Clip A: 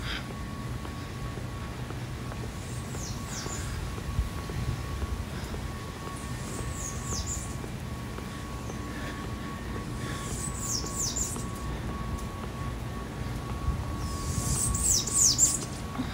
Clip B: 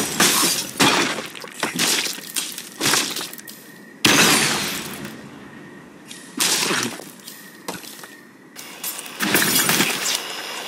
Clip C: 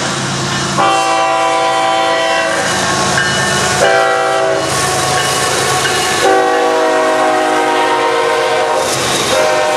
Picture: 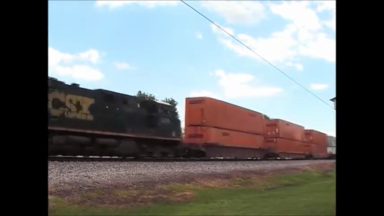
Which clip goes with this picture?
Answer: C